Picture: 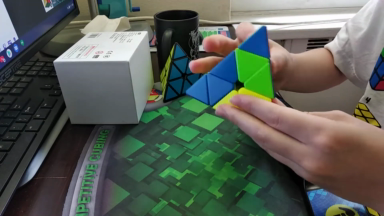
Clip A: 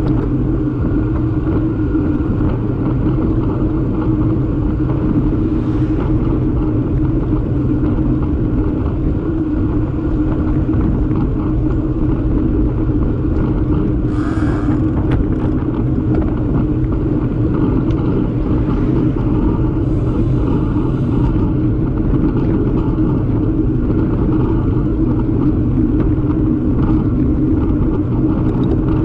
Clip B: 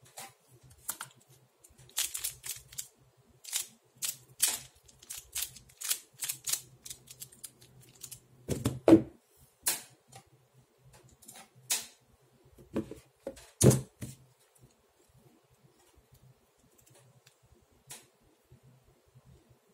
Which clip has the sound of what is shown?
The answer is B